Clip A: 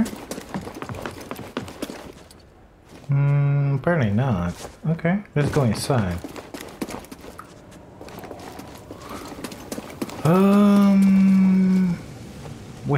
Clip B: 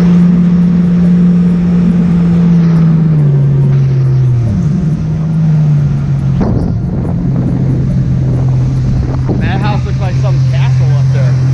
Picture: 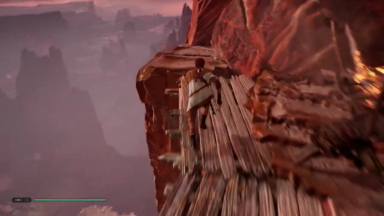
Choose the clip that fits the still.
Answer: A